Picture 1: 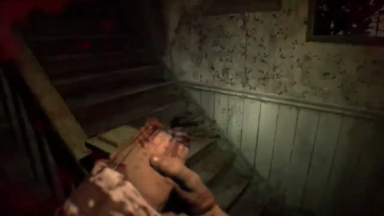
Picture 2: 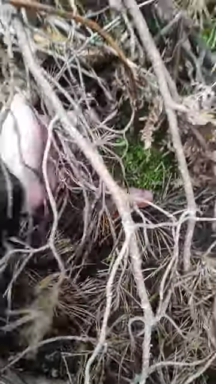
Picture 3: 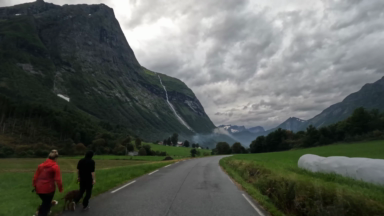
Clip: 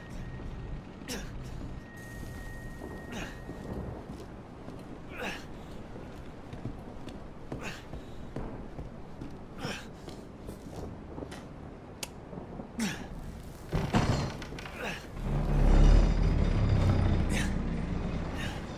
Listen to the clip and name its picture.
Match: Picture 1